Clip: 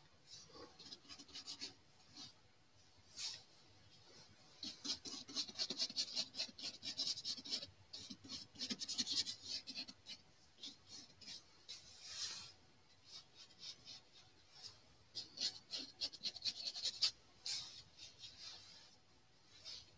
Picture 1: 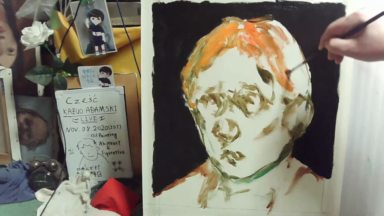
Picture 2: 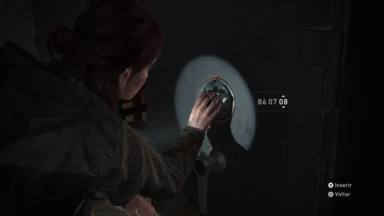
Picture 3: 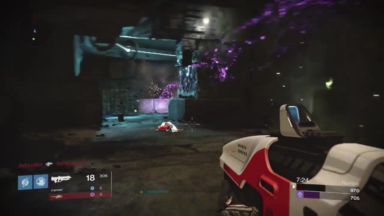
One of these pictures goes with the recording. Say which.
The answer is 1